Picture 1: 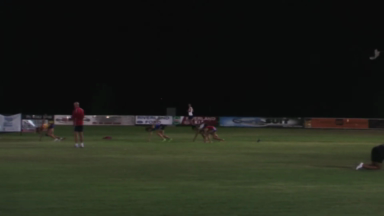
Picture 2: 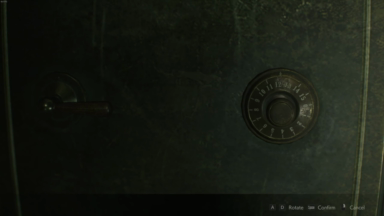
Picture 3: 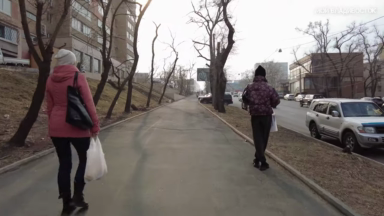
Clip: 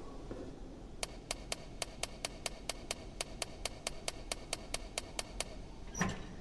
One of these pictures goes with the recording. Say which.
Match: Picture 2